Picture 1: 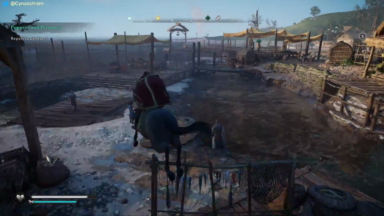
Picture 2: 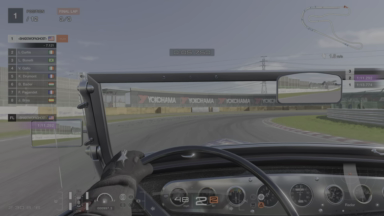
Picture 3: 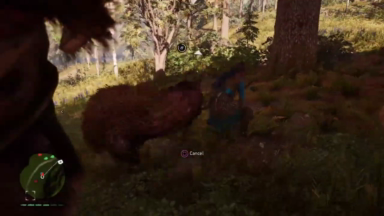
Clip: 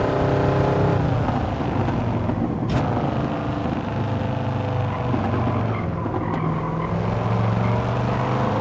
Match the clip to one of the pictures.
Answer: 2